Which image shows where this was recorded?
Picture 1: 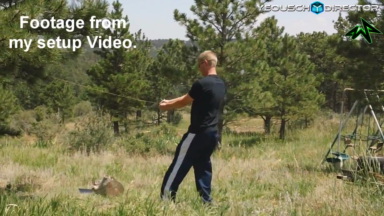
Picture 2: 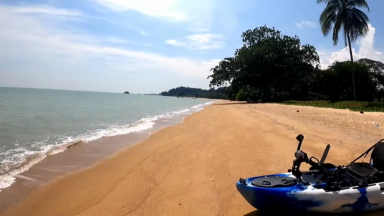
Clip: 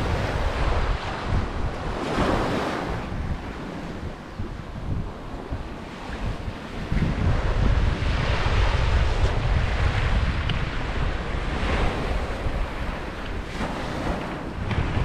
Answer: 2